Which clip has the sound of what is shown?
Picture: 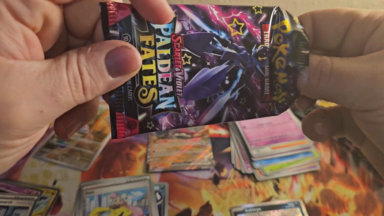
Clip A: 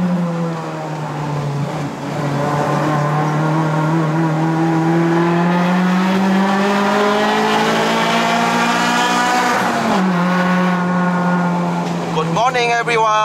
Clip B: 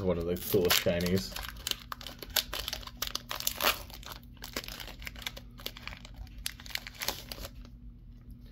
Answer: B